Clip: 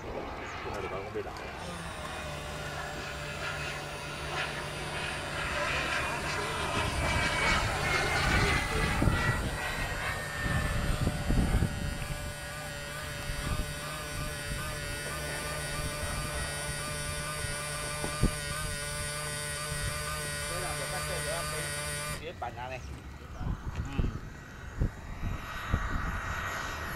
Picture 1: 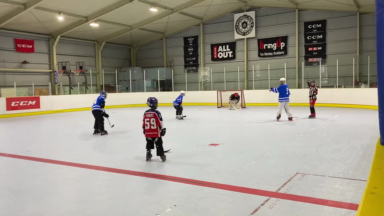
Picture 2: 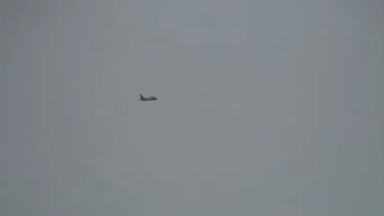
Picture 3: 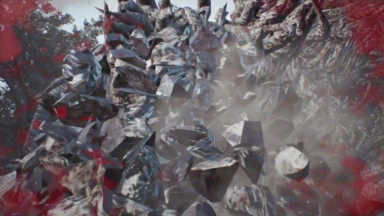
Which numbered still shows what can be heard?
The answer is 2